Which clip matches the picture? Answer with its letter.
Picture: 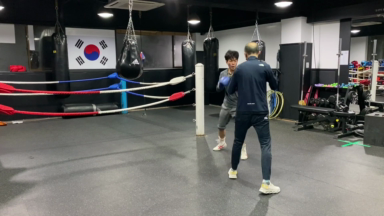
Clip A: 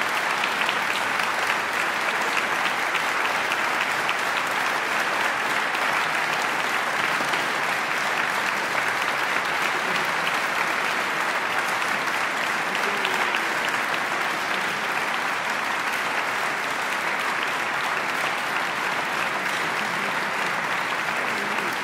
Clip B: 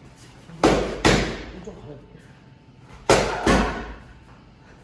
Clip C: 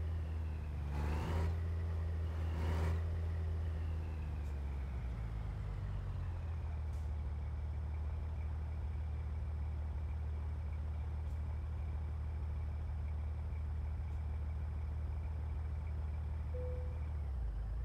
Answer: B